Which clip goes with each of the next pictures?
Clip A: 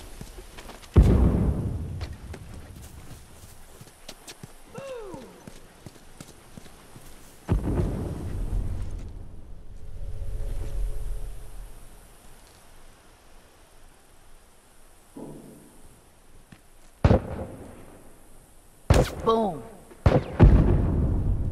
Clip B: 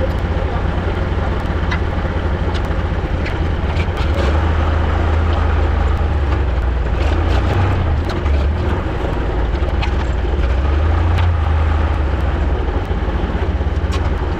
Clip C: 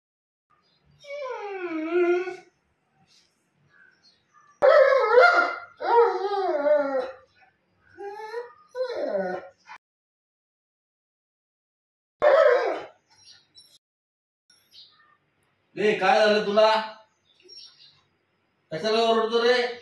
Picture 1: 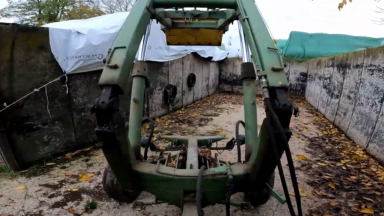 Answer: B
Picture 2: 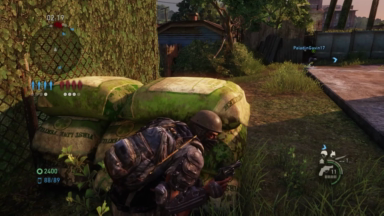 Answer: A